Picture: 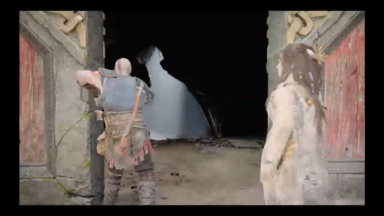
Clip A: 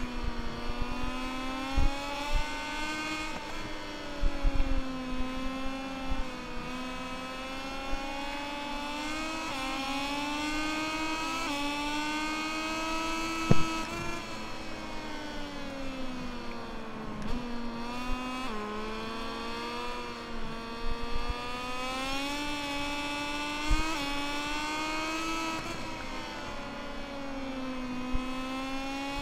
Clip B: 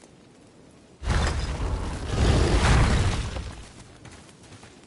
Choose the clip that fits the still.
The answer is B